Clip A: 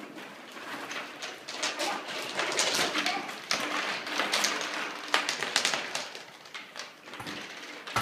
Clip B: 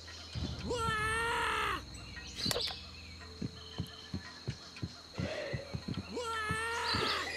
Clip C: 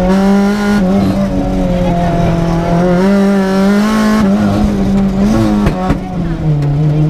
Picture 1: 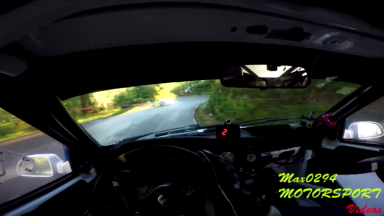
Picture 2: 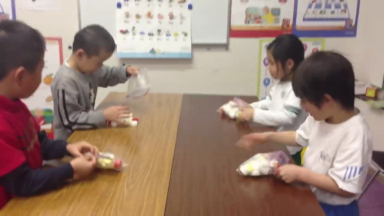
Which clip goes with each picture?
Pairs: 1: C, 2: A